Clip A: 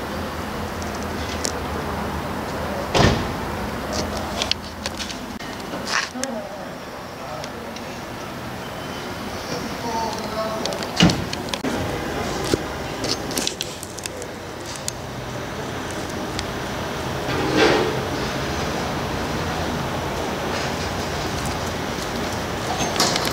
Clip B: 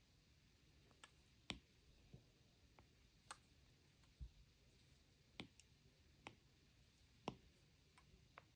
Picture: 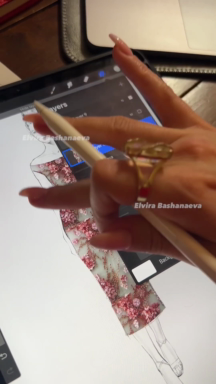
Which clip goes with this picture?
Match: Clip B